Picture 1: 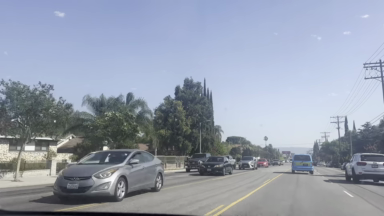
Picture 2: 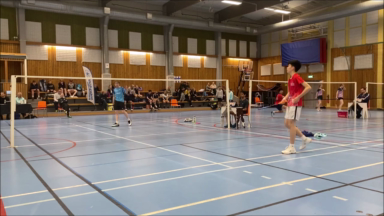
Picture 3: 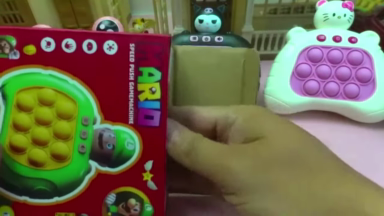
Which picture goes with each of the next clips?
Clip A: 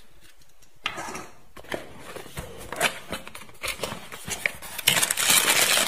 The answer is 3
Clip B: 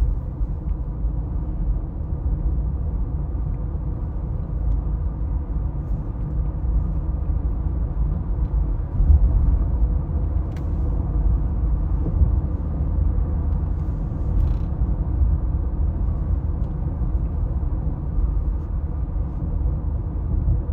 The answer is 1